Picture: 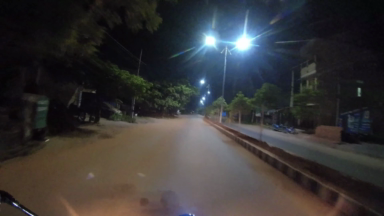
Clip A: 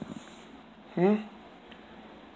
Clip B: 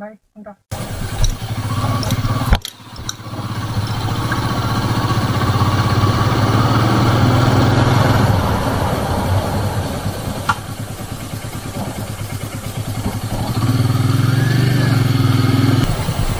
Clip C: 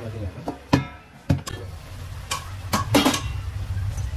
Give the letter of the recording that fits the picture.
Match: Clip B